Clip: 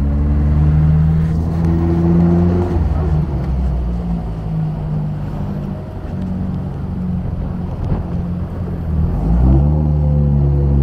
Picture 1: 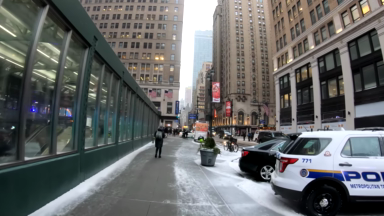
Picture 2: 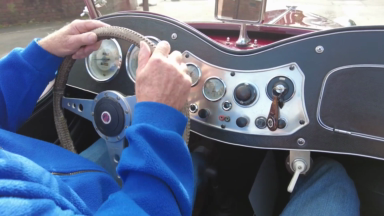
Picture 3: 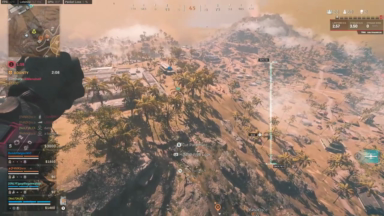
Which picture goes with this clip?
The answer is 2